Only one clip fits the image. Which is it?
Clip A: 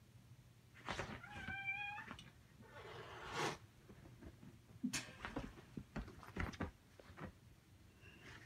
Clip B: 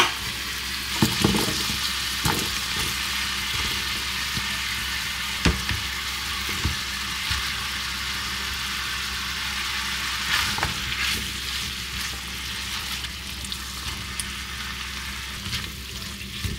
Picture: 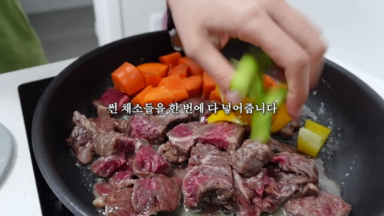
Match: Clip B